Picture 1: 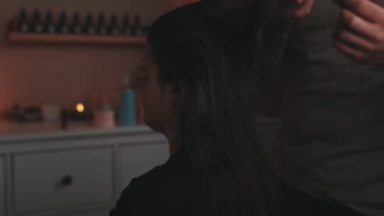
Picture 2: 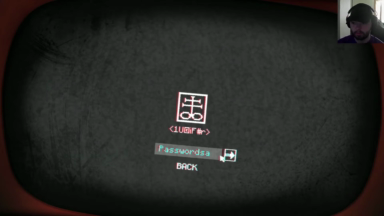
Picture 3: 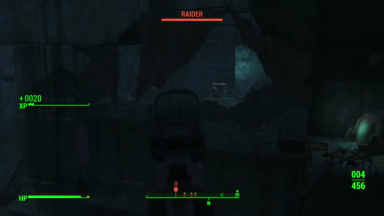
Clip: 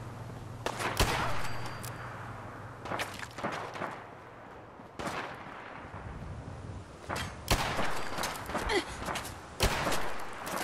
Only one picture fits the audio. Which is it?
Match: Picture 3